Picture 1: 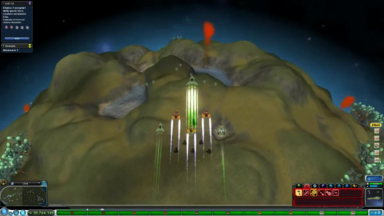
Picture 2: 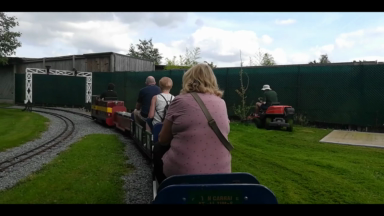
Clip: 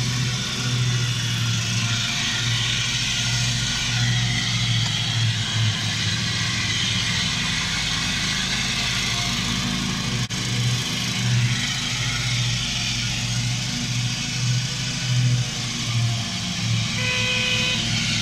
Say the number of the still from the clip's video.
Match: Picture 2